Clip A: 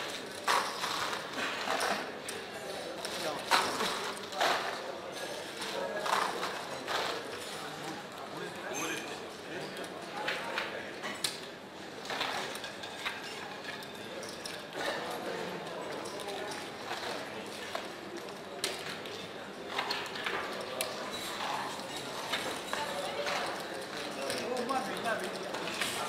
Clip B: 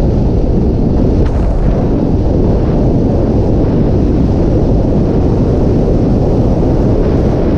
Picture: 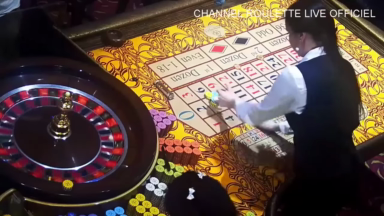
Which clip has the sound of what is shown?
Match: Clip A